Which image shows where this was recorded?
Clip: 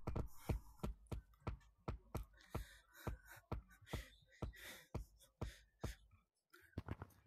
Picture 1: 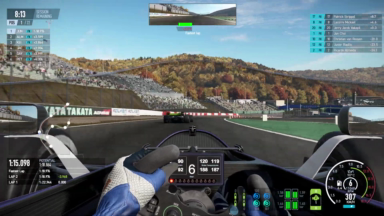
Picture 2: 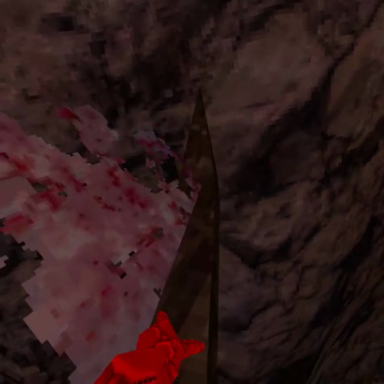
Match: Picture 2